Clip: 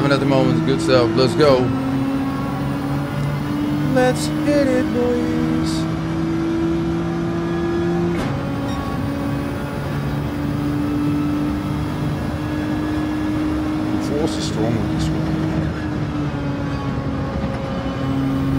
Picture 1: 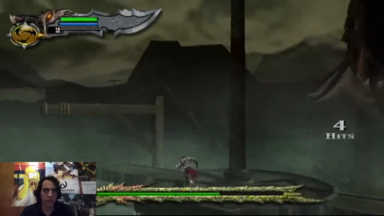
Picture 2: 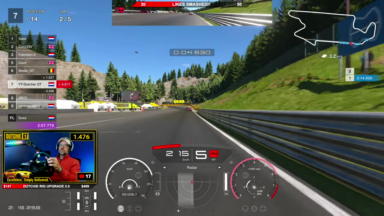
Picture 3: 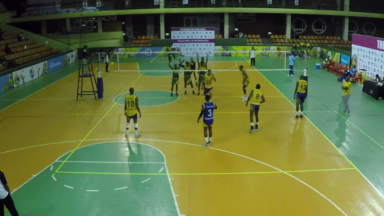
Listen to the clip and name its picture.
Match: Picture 2